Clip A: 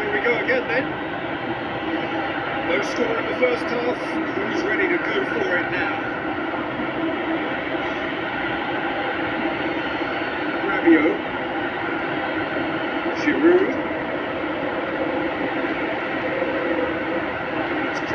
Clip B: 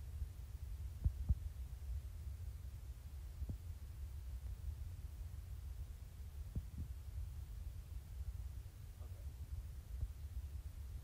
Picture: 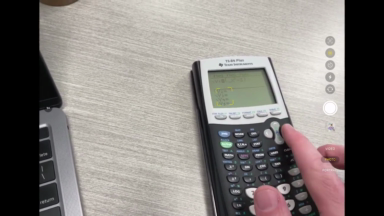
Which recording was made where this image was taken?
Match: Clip B